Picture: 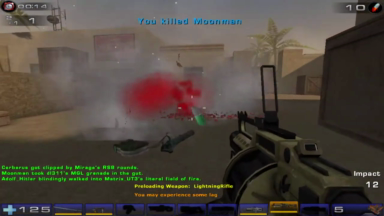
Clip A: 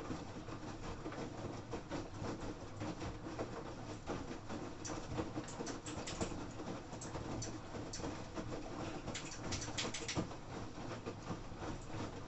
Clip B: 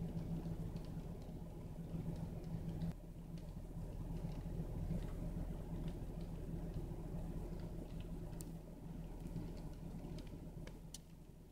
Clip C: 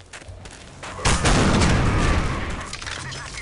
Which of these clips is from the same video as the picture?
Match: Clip C